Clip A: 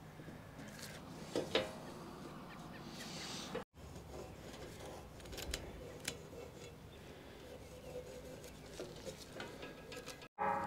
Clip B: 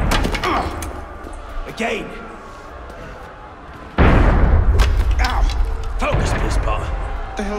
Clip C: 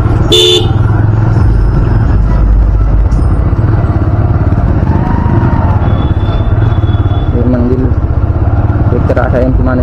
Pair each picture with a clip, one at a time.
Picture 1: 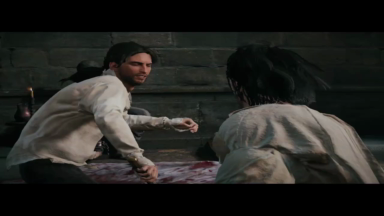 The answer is B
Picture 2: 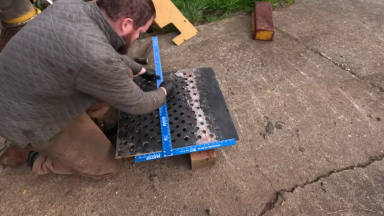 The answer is A